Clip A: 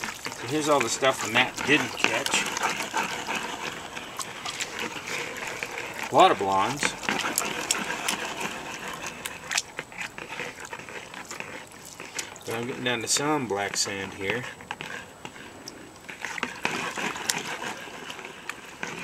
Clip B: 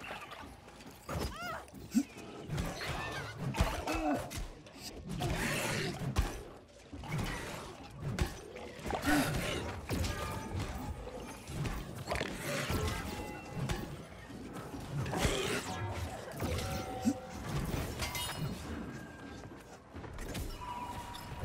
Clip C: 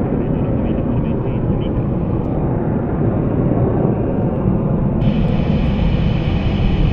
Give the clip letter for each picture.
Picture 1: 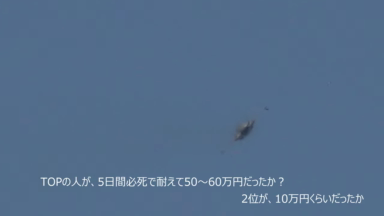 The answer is C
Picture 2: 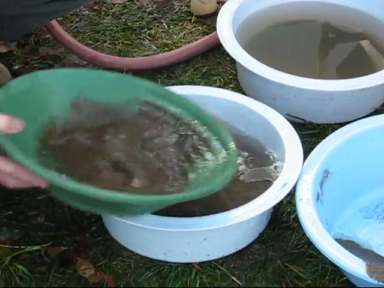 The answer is A